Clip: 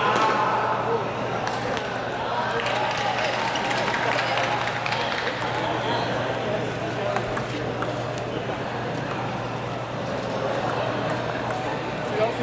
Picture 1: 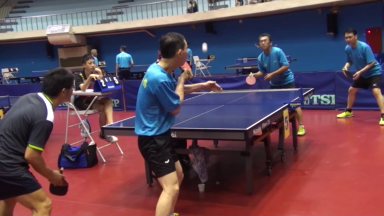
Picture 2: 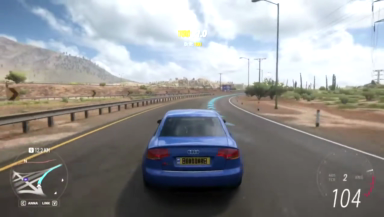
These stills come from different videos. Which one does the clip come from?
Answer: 1